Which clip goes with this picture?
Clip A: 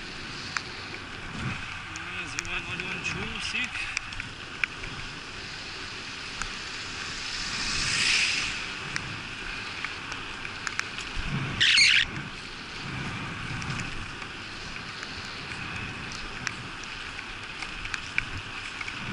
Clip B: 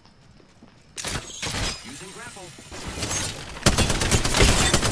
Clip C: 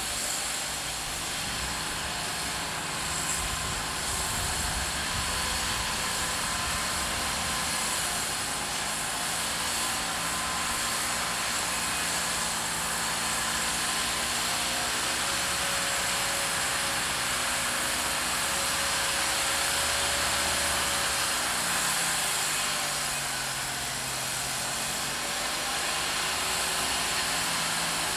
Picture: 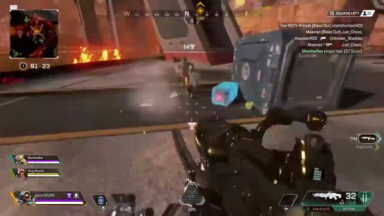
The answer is B